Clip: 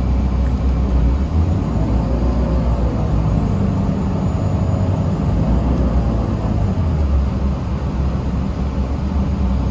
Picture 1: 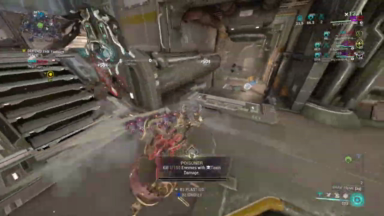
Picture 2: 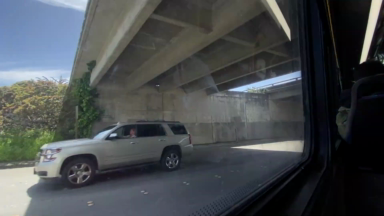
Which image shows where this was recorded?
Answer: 2